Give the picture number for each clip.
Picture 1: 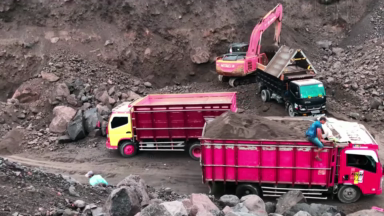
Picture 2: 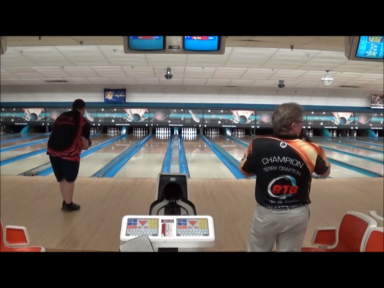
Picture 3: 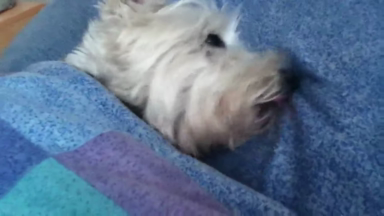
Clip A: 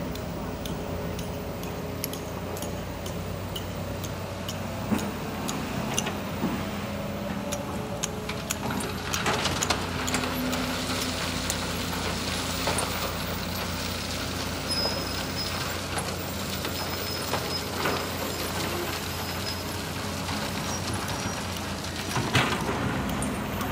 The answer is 1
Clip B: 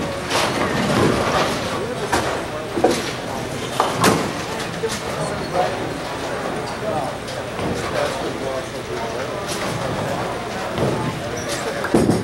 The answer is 2